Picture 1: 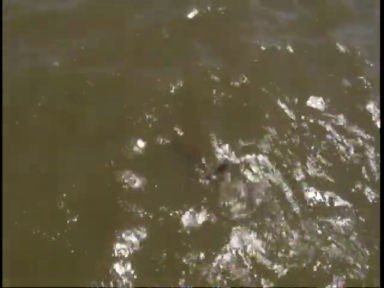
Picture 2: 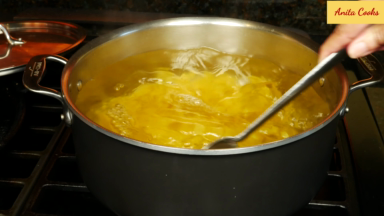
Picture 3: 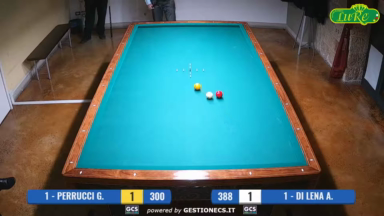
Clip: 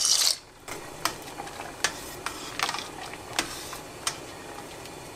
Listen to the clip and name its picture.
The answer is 2